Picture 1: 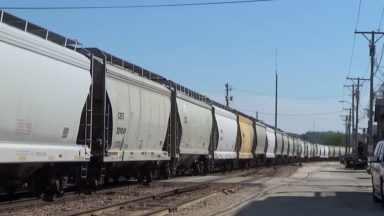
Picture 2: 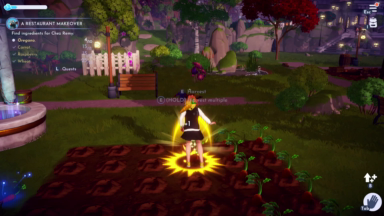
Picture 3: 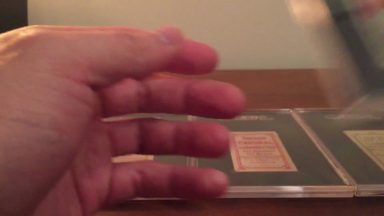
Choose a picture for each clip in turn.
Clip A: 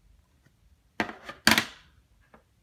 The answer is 3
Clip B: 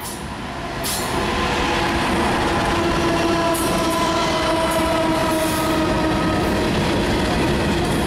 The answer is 1